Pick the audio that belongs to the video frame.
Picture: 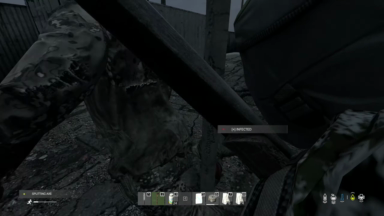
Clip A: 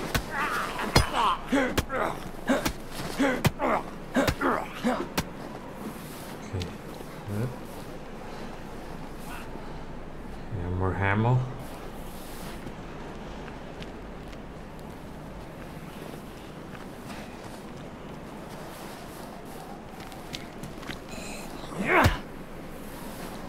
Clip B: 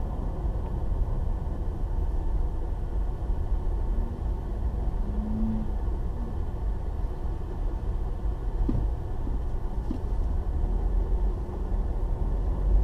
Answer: A